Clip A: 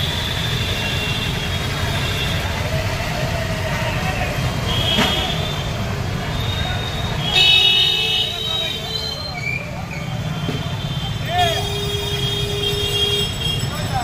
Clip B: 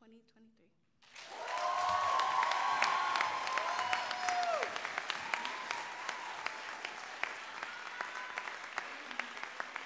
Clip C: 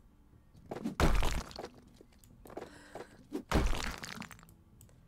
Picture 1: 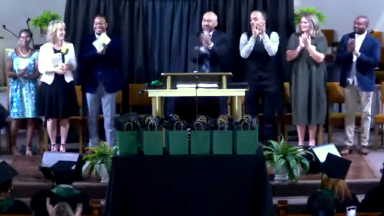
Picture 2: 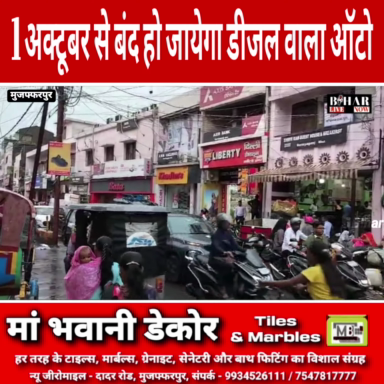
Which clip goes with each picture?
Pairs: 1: B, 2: A